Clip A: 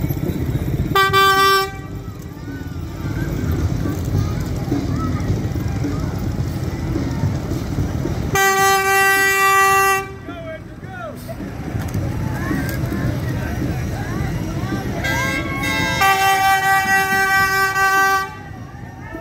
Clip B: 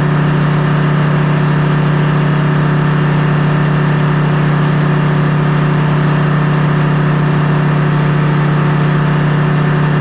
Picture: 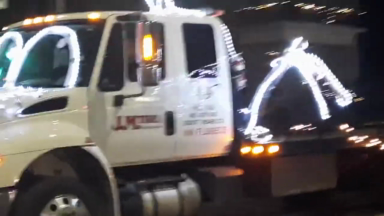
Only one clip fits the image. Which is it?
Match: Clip A